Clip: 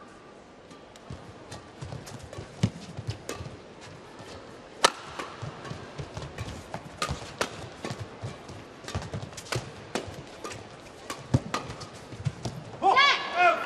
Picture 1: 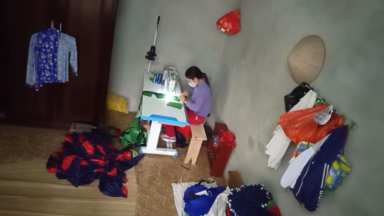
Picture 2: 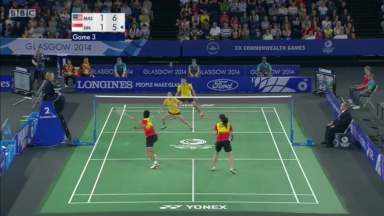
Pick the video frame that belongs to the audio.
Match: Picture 2